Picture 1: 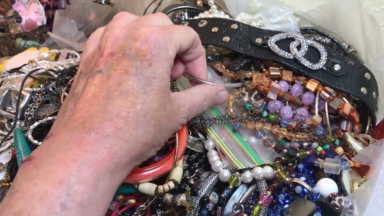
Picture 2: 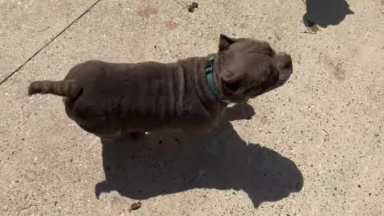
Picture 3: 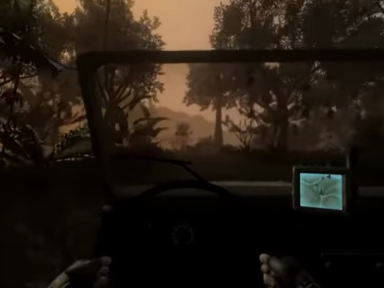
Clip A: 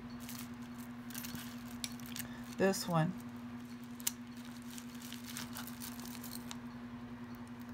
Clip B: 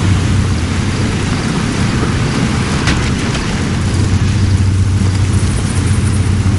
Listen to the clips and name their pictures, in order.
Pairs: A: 1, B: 3